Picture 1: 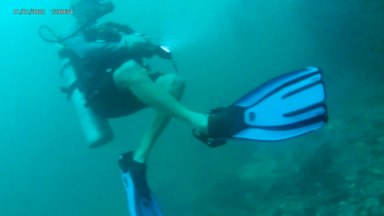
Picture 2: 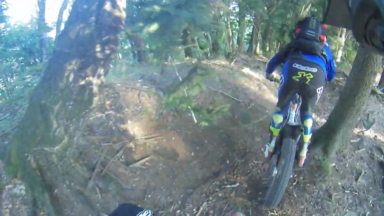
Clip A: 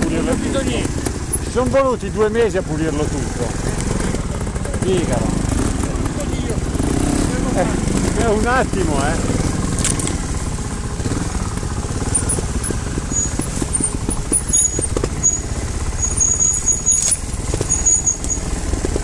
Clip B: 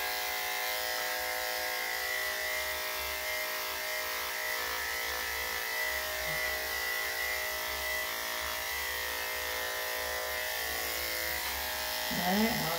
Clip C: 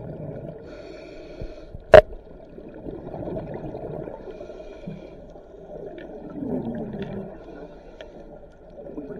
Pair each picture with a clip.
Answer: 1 C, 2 A